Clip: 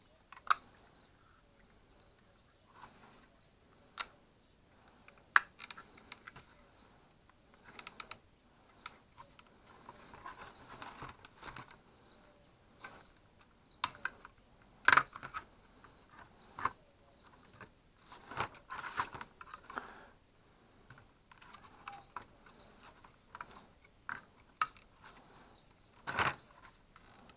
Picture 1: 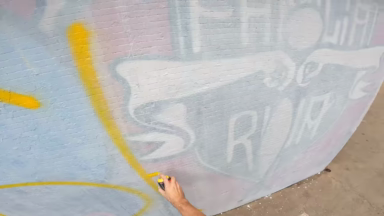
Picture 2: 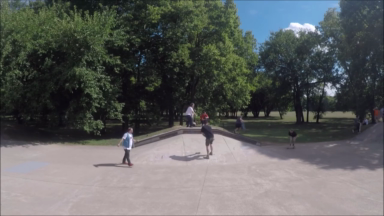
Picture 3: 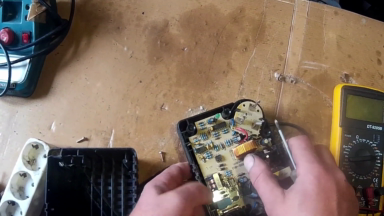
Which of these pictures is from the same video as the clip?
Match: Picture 3